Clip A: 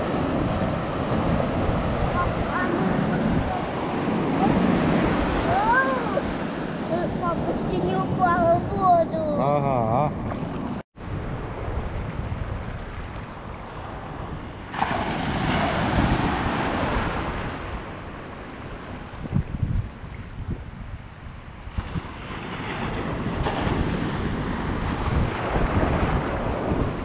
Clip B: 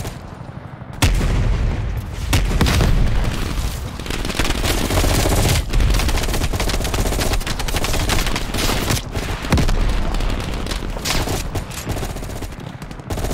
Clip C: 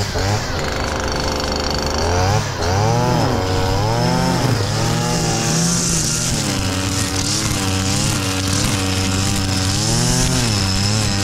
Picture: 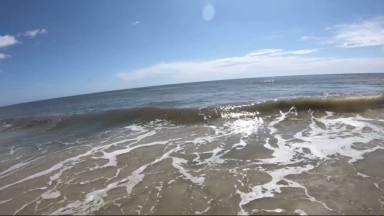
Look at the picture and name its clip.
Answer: A